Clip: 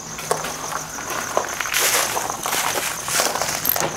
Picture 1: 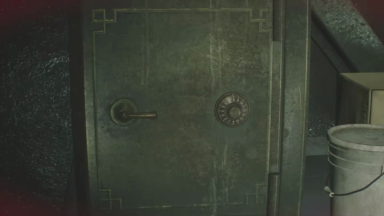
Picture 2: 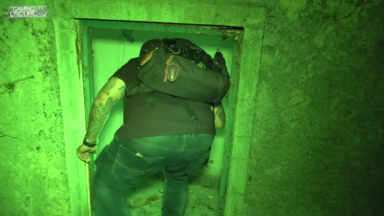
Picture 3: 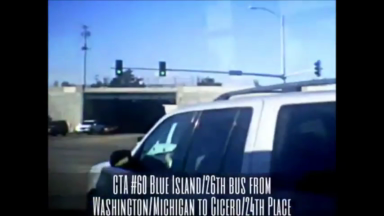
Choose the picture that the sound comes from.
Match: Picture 2